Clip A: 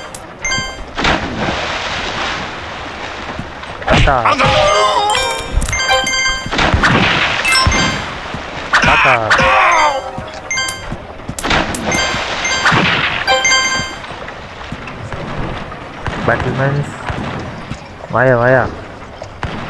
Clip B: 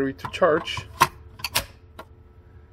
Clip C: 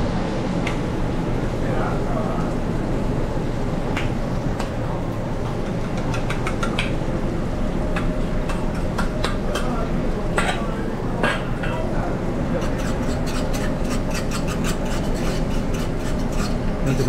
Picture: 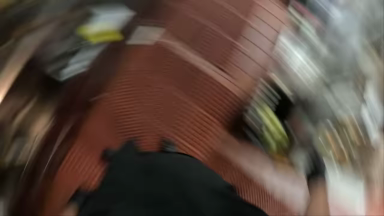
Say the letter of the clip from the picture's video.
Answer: C